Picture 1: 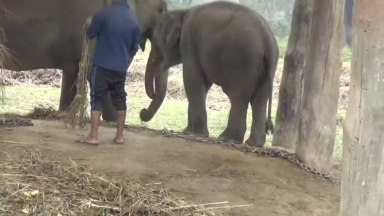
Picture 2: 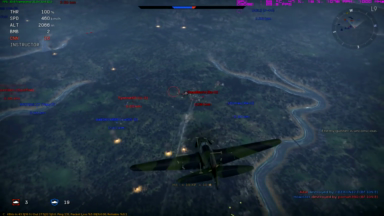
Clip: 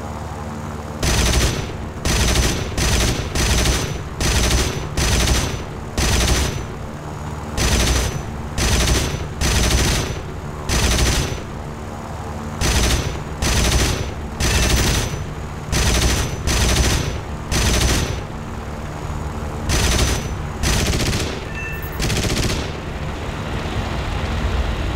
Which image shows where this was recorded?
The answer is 2